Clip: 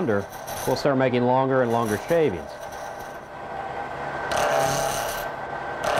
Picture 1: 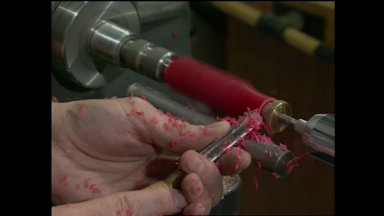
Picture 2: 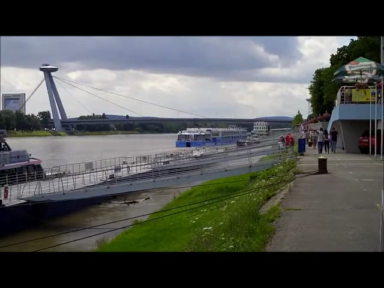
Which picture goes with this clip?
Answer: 1